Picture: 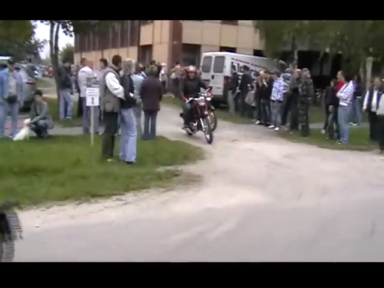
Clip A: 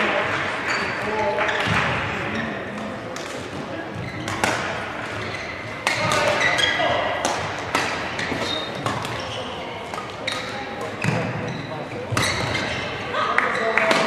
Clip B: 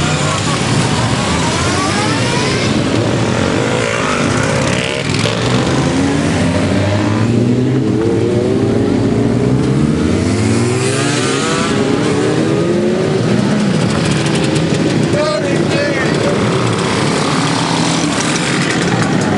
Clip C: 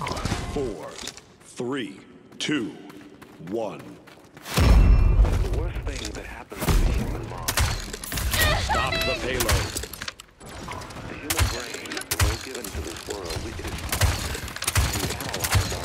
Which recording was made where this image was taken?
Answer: B